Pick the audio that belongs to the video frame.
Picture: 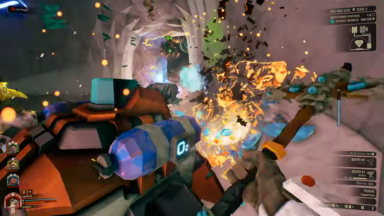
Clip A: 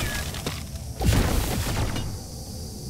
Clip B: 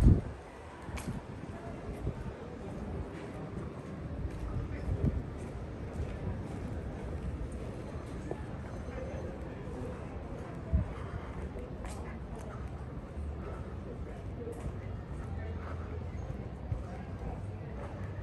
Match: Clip A